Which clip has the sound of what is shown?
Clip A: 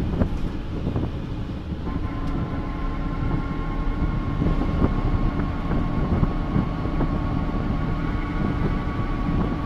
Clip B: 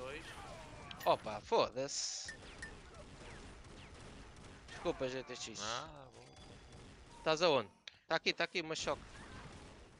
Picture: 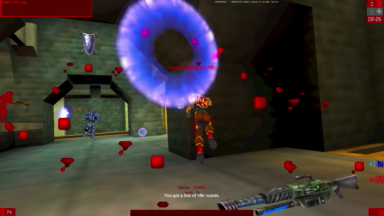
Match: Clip B